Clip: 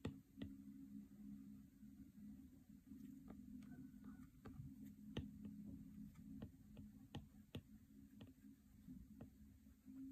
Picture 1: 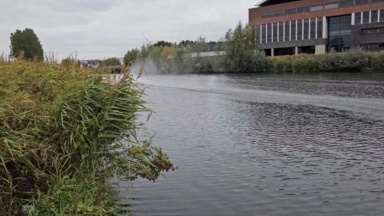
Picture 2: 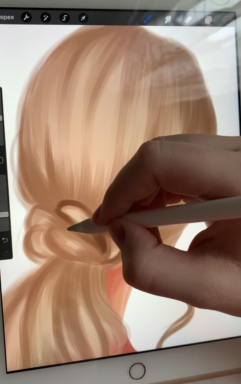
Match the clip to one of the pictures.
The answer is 2